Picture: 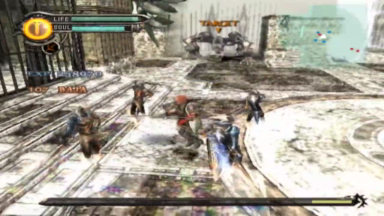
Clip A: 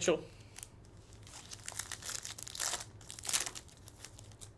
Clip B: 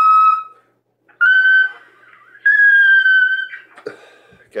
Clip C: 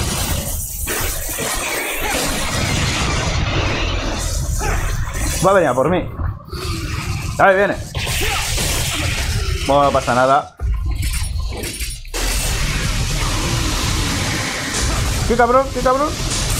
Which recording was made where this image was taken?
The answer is C